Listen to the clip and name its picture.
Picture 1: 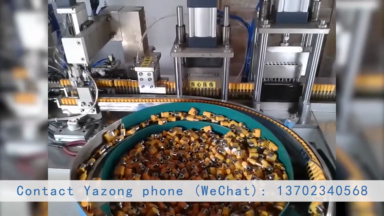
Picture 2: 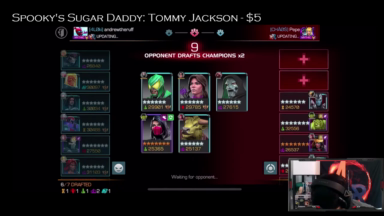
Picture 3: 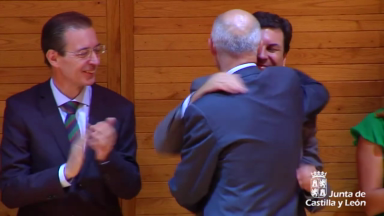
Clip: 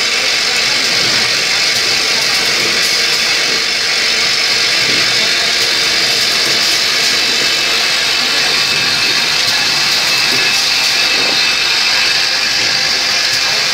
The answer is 1